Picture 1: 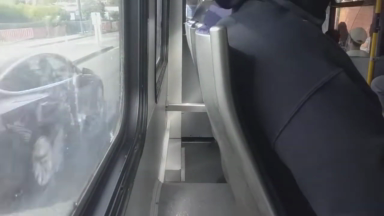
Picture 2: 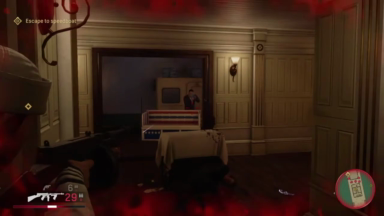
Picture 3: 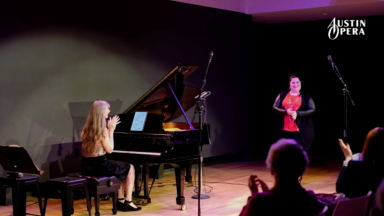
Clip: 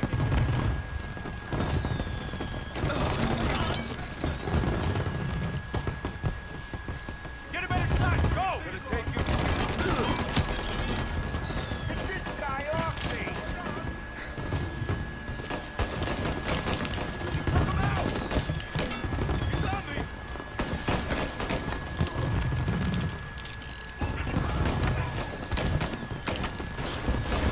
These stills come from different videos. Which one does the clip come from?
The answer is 2